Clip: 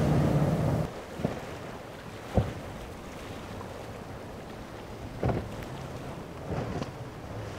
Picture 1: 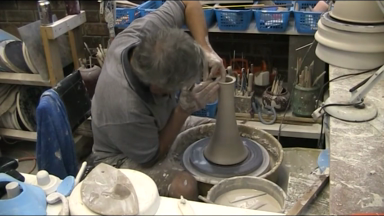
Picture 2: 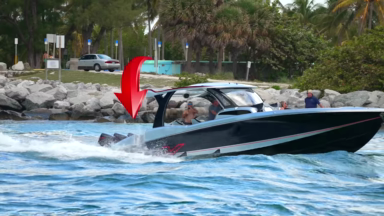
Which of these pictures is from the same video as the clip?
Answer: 2